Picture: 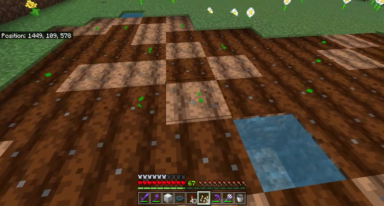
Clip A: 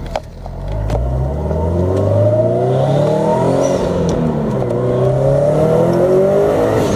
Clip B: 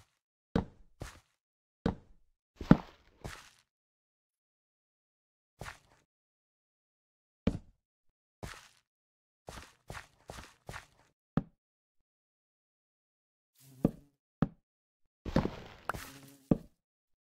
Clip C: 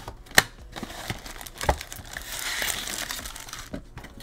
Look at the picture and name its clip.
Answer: B